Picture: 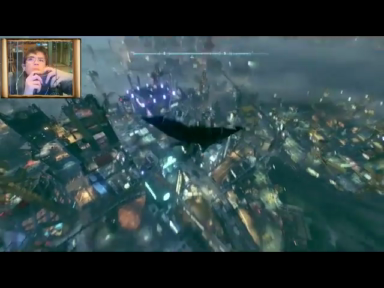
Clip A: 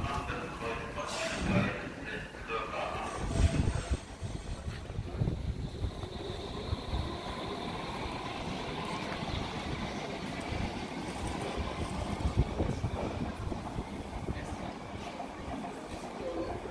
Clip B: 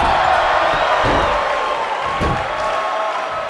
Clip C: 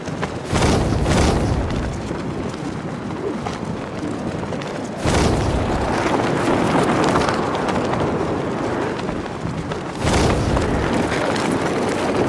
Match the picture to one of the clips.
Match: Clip C